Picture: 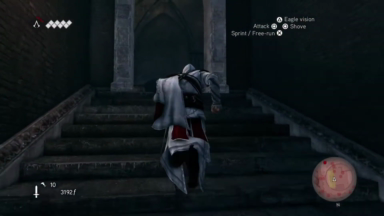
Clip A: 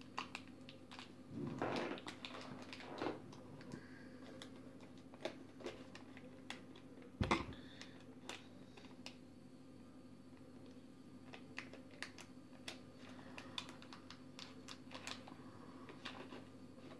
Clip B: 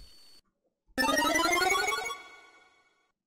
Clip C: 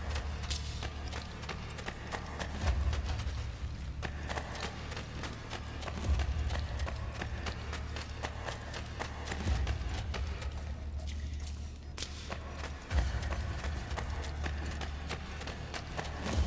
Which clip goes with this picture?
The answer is C